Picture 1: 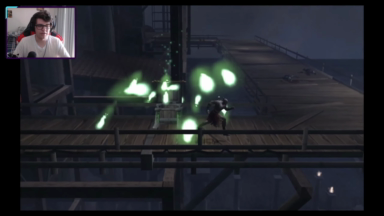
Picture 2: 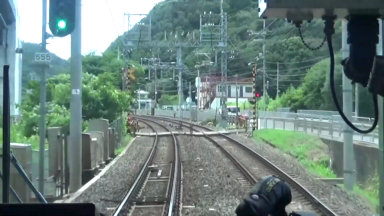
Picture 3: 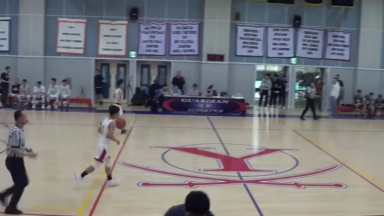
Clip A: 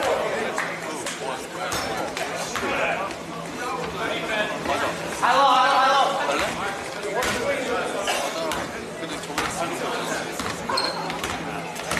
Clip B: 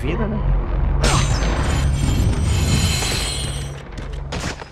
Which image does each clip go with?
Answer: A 3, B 1